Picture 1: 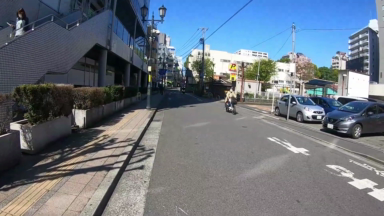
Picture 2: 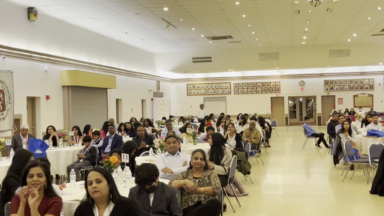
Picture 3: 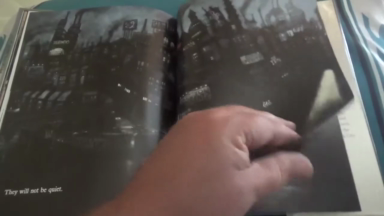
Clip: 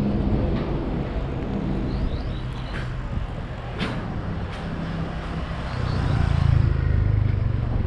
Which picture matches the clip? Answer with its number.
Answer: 1